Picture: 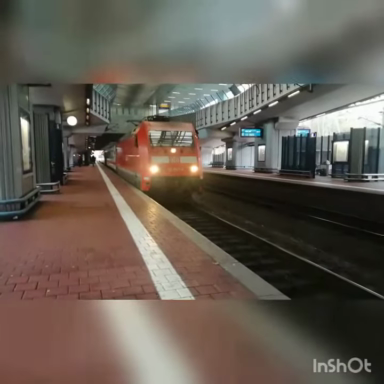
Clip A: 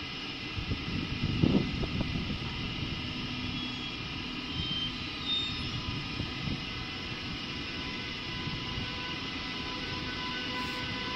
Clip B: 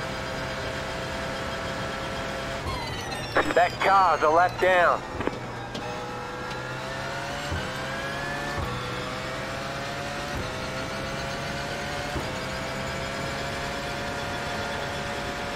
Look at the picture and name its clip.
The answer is A